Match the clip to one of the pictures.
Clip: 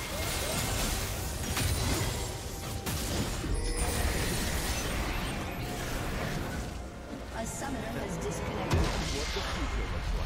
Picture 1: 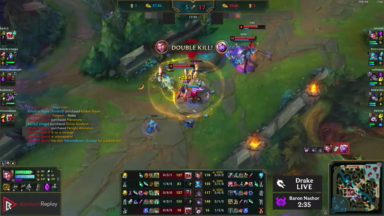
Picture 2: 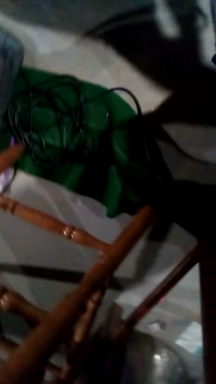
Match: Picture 1